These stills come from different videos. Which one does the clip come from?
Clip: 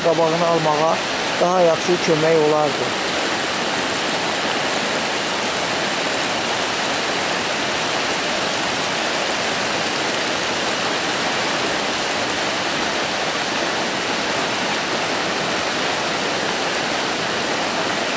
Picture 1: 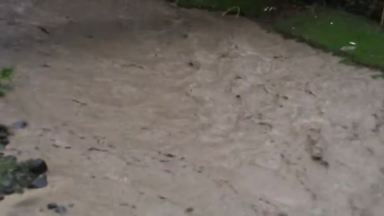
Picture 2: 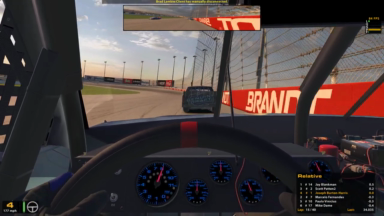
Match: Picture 1